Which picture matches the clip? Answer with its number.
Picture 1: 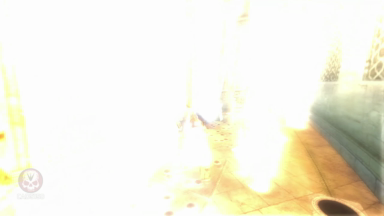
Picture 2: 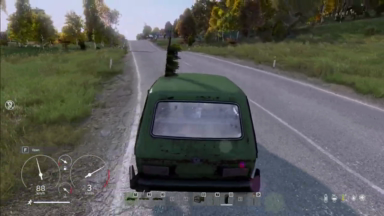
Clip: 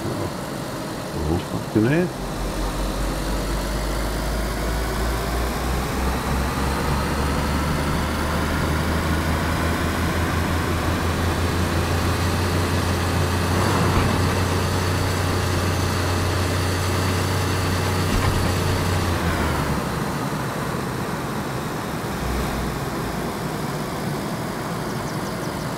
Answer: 2